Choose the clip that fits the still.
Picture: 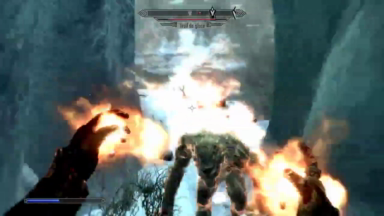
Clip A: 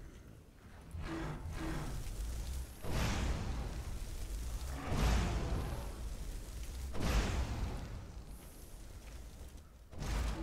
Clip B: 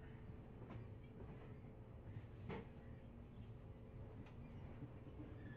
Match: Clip A